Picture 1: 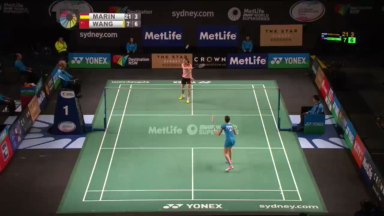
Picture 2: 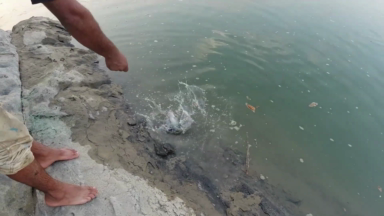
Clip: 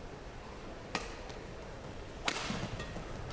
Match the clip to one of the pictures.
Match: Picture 1